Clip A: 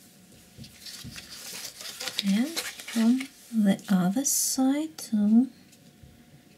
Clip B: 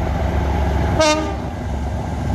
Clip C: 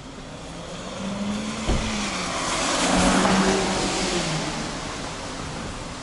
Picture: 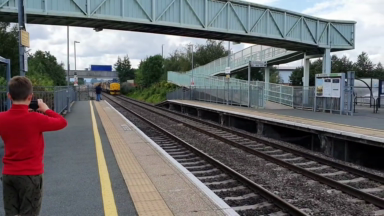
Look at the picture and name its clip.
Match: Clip B